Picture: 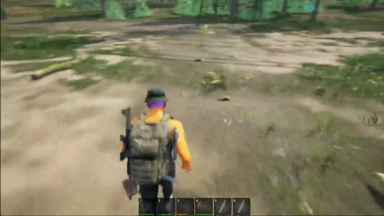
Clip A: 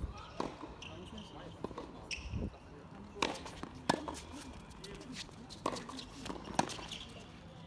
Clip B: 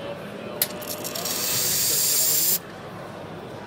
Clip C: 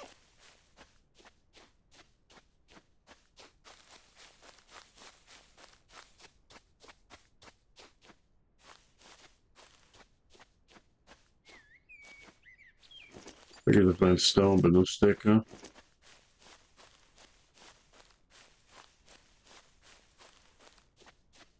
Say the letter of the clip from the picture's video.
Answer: C